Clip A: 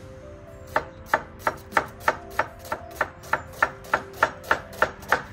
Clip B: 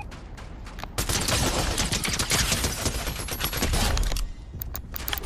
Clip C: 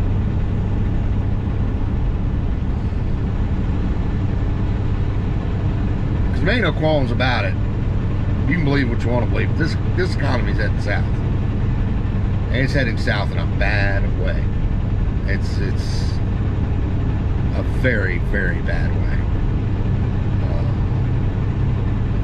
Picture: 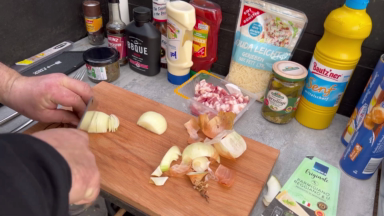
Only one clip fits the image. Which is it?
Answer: A